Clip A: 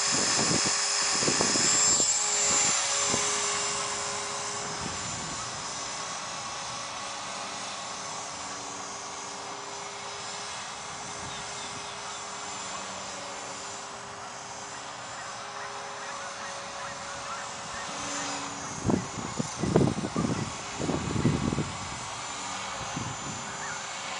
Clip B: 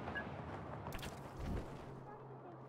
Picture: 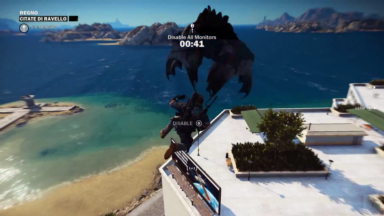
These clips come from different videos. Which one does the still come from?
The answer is B